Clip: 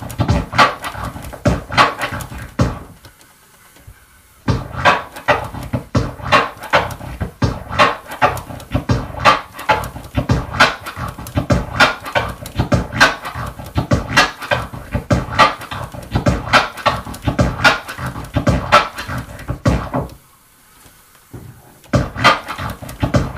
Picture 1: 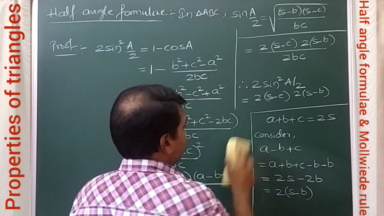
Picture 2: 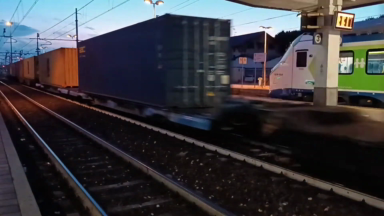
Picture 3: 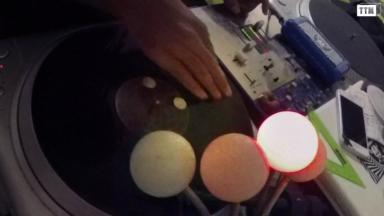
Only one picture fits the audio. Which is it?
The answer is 3